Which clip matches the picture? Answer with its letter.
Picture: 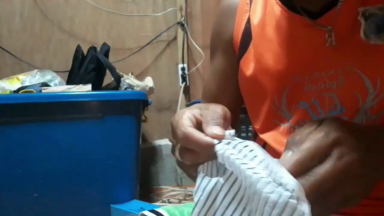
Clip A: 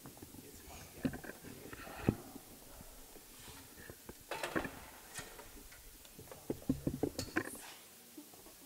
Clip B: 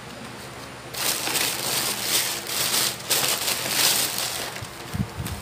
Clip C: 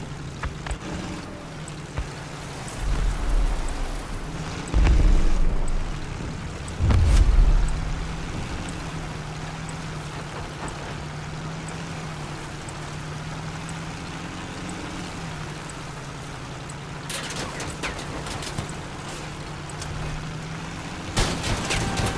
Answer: B